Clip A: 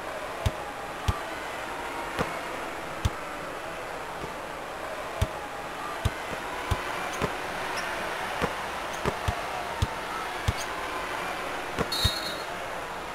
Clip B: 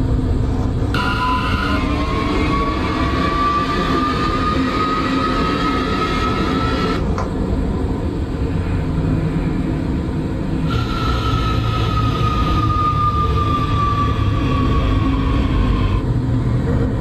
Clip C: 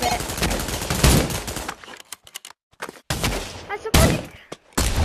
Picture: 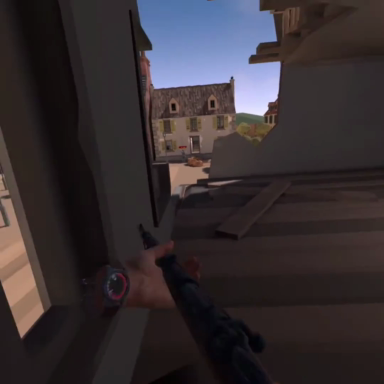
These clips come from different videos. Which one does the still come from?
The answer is C